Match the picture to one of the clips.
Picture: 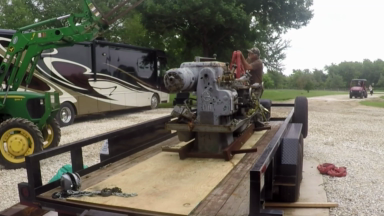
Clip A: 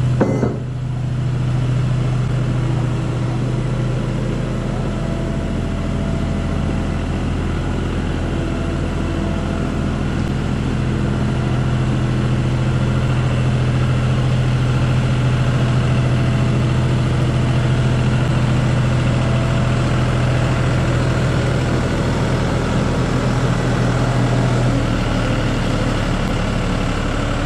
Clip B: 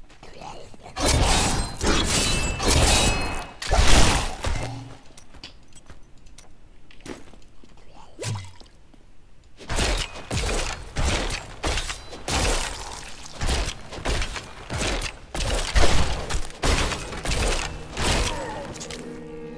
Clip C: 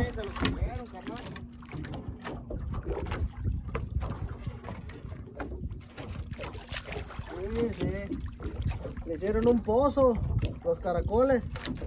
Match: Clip A